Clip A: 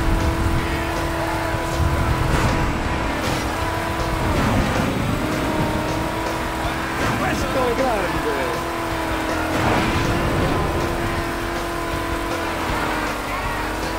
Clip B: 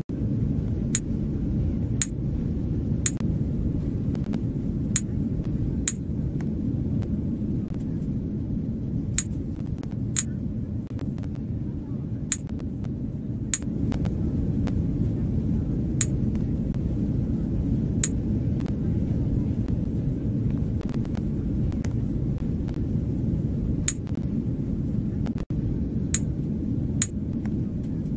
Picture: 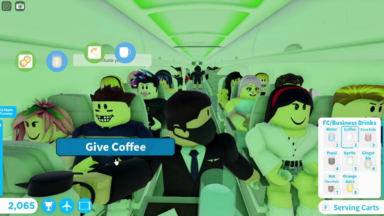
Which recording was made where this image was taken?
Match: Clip B